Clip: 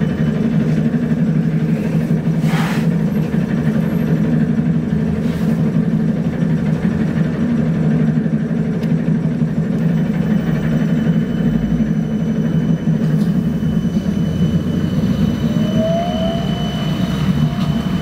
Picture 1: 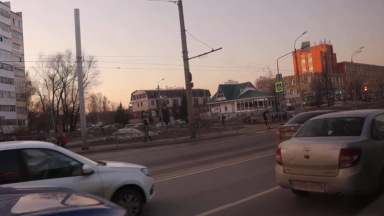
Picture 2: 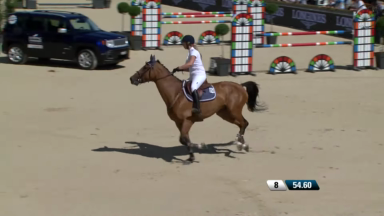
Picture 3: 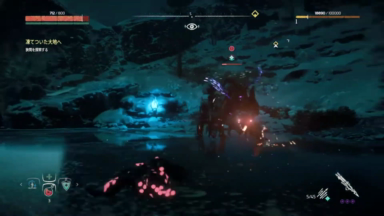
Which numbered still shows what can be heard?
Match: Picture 1